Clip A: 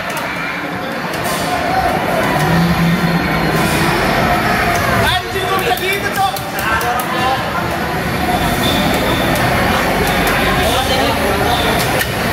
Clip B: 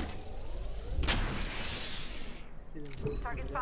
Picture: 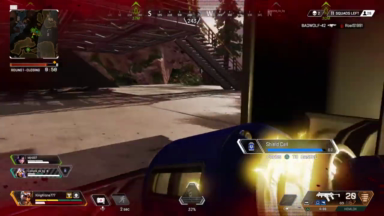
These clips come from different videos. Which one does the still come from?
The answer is B